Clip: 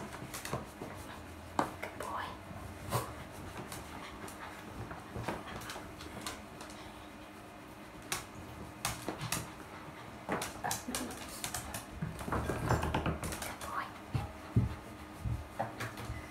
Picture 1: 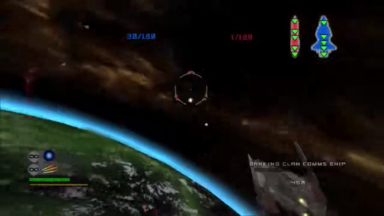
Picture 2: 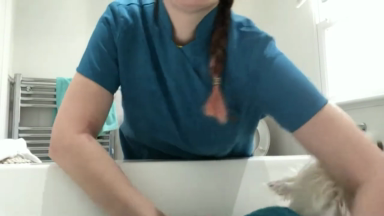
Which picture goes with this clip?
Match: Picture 2